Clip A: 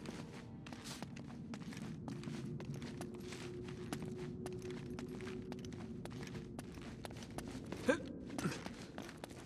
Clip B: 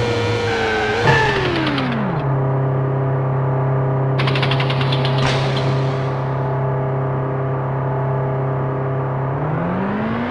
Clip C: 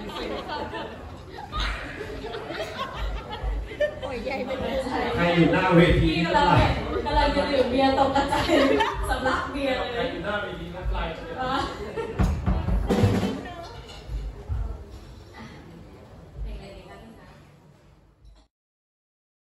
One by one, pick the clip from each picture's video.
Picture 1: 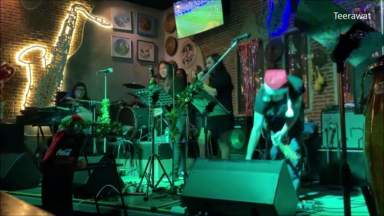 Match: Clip C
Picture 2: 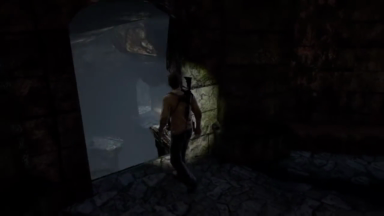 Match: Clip A